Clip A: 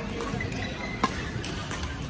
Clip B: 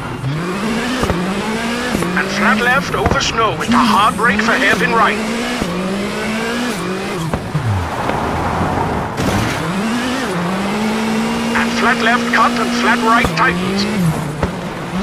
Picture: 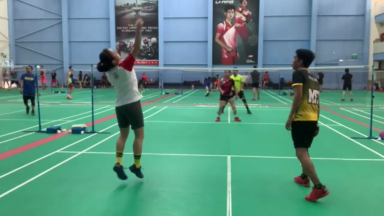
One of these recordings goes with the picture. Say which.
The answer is A